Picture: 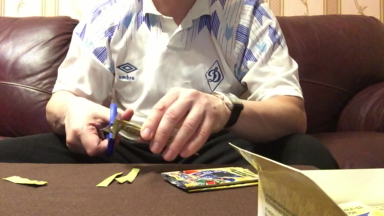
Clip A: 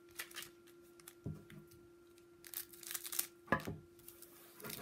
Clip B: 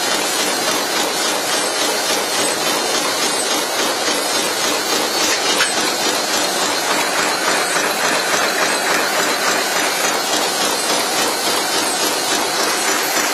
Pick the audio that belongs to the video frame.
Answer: A